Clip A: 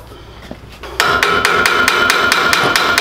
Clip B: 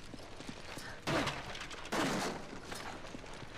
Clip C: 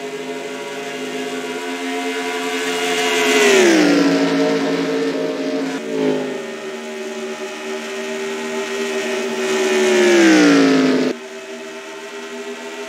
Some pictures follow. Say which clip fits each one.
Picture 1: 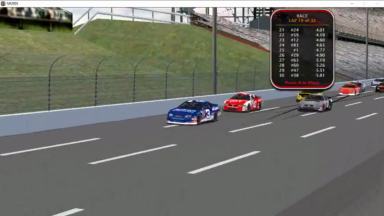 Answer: C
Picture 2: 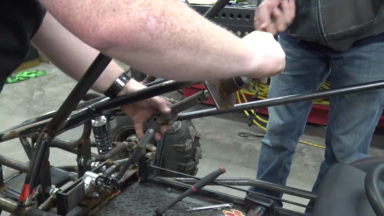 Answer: A